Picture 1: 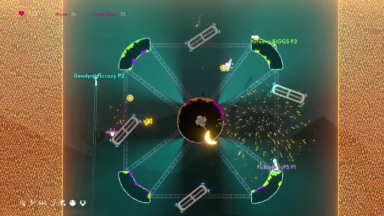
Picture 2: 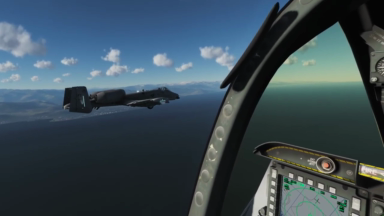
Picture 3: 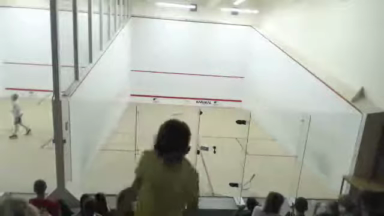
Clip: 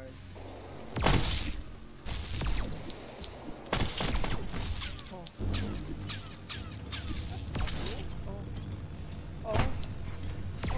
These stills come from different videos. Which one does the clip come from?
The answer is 1